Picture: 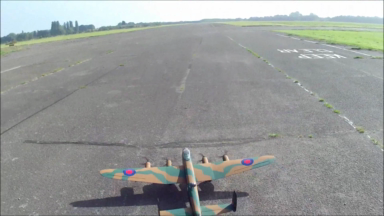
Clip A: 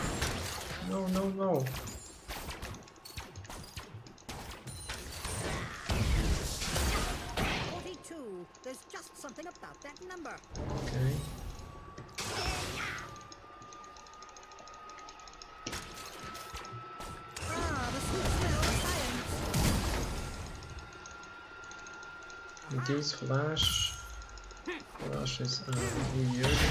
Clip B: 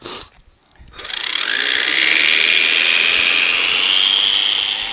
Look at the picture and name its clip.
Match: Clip B